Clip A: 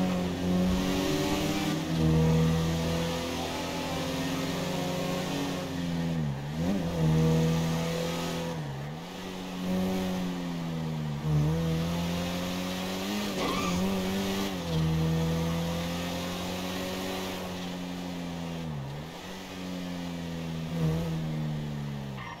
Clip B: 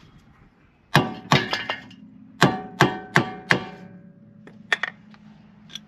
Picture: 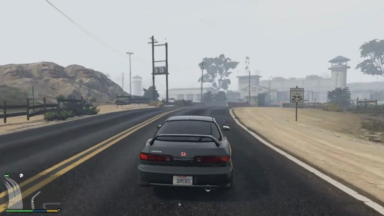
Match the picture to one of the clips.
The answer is A